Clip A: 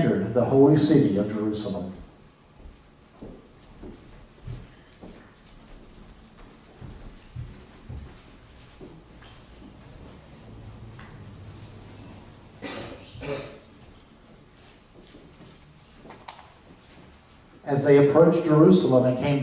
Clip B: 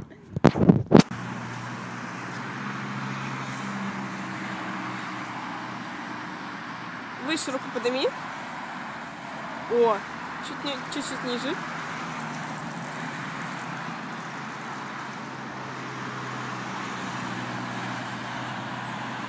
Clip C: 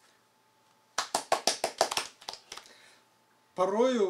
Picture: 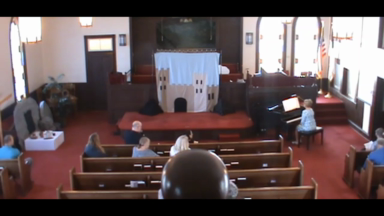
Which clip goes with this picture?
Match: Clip A